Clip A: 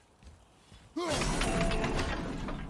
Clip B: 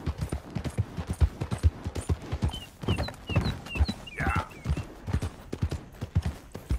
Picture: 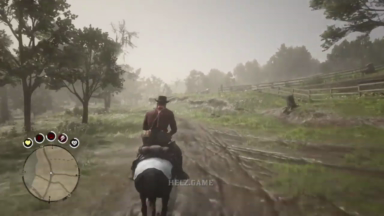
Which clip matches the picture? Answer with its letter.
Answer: B